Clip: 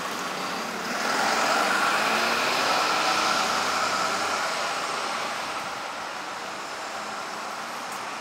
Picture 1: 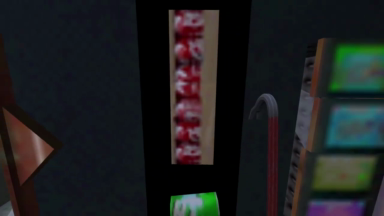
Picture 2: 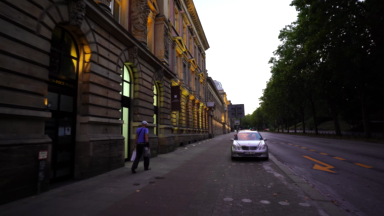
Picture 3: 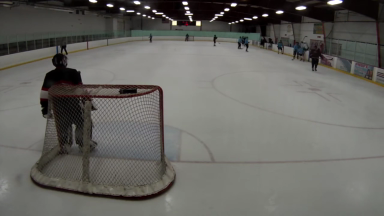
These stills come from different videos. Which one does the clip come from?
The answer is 2